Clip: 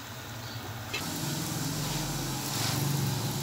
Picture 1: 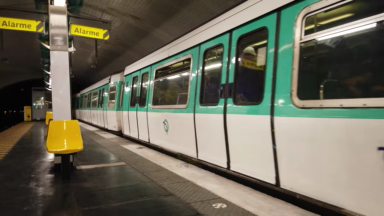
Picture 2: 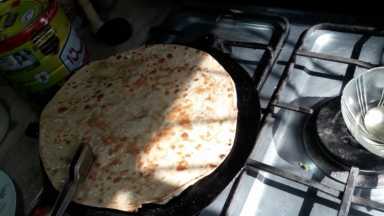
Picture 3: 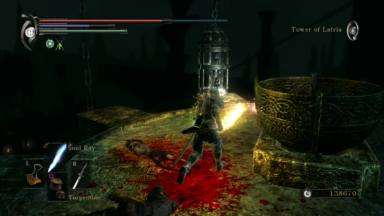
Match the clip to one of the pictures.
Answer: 2